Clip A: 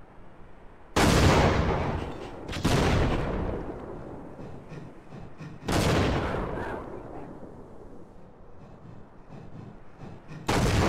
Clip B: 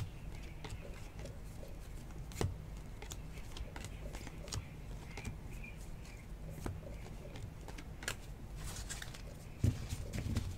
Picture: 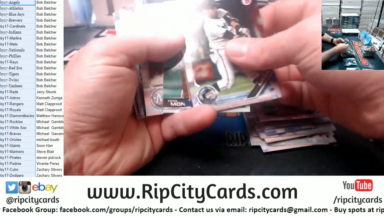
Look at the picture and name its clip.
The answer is B